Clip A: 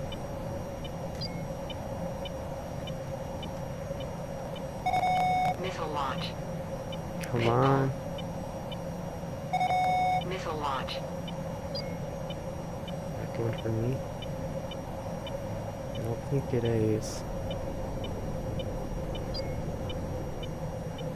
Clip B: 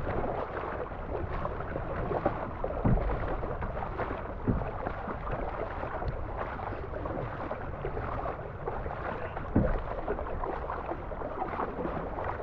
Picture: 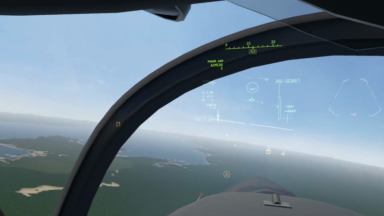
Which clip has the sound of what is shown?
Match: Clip A